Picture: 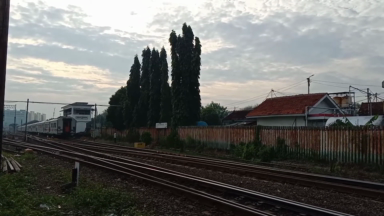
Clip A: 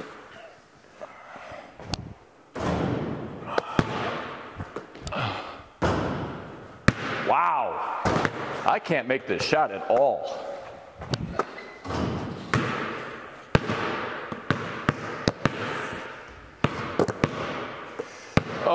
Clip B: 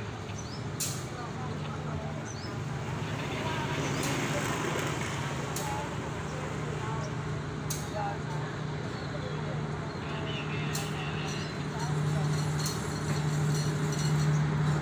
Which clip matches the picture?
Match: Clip B